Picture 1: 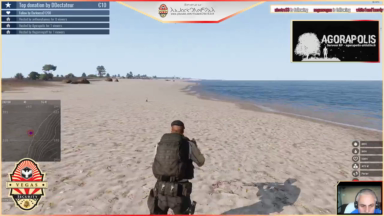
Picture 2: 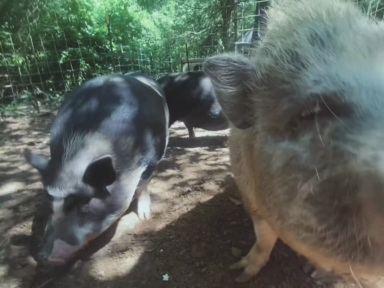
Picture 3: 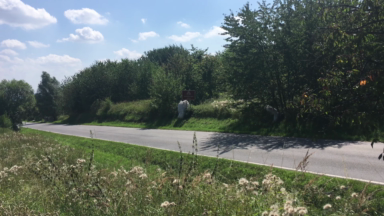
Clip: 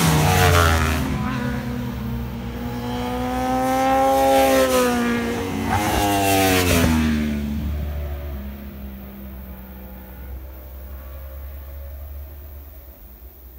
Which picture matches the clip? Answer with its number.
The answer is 3